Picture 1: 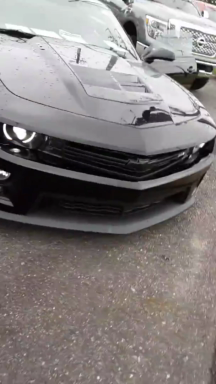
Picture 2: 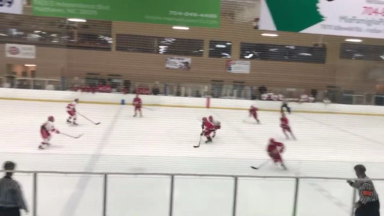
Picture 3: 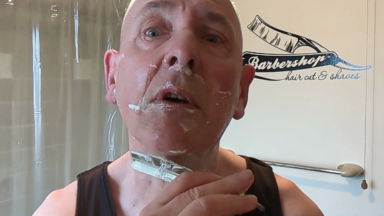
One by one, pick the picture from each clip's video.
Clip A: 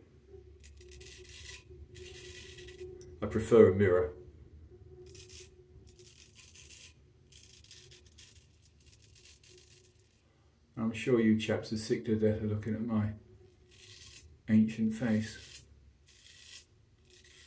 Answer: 3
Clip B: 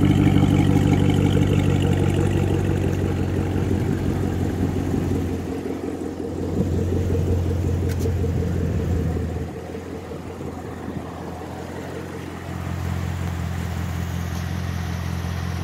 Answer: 1